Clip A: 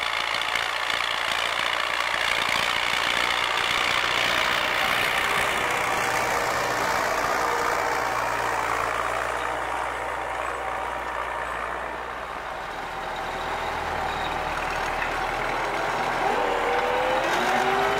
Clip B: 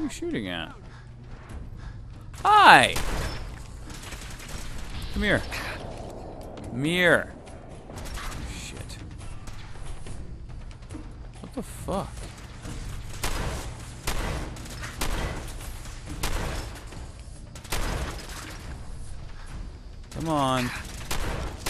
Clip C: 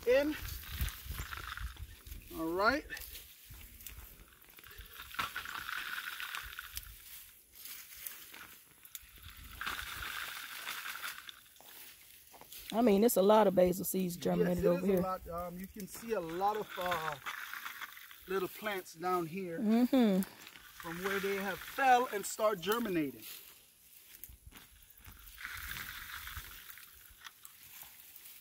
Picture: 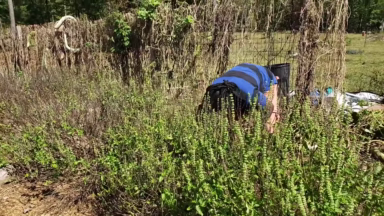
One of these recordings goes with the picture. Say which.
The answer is C